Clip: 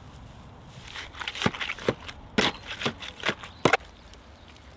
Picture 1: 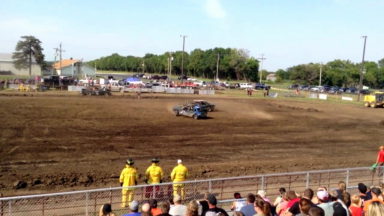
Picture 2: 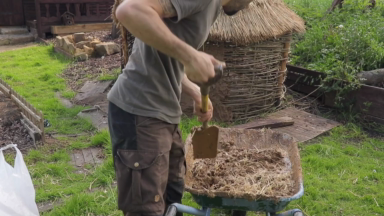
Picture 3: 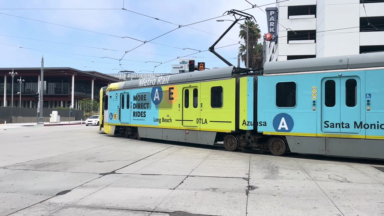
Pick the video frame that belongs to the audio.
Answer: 2